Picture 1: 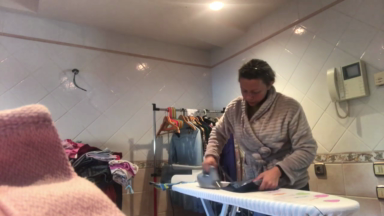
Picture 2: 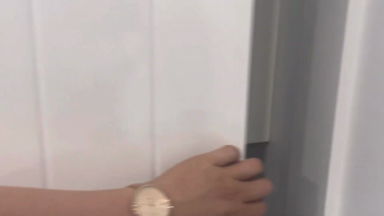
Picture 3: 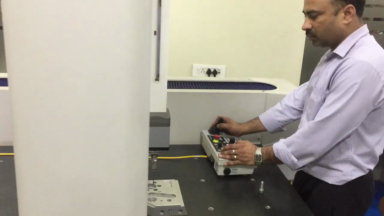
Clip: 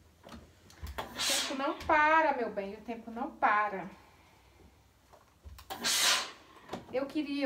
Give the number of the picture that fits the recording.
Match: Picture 1